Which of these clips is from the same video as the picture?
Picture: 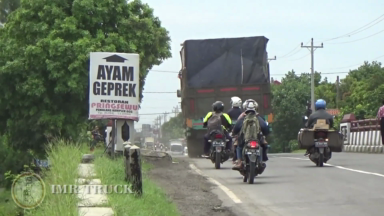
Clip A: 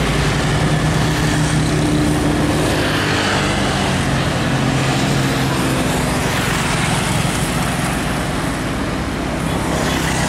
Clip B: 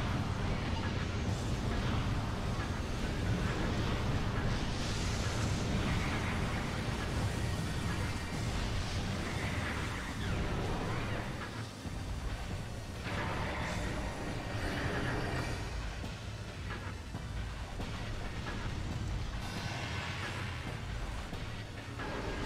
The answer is A